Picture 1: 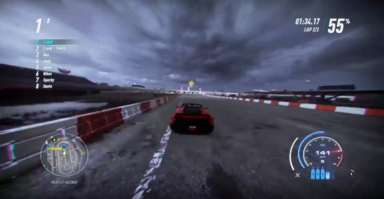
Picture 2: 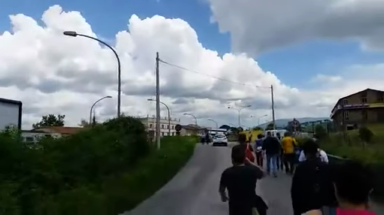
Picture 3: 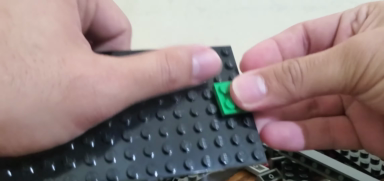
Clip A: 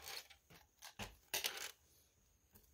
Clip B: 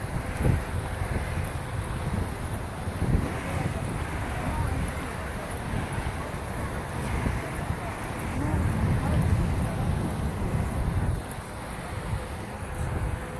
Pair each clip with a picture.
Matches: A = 3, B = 2